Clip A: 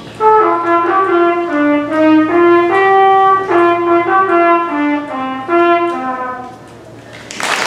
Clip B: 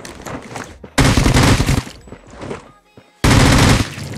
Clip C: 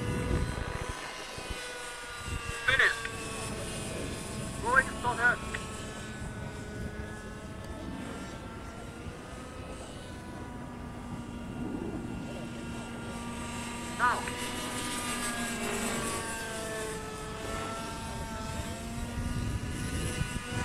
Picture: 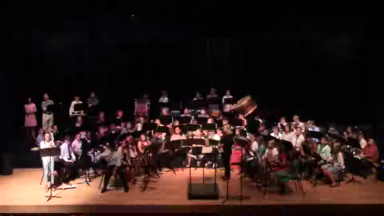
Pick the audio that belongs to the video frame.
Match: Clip A